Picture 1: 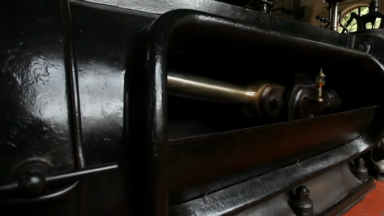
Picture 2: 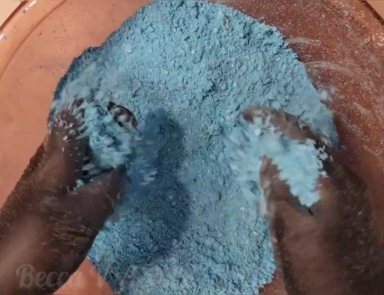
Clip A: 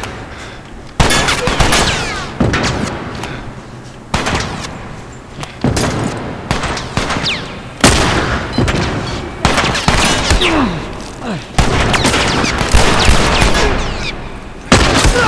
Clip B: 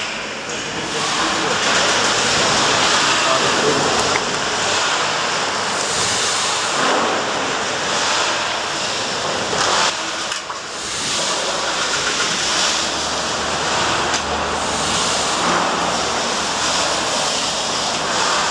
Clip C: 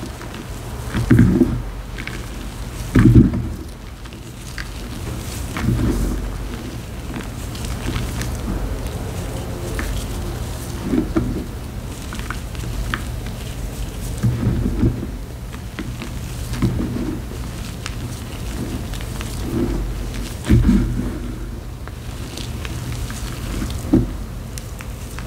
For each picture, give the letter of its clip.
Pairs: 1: B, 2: C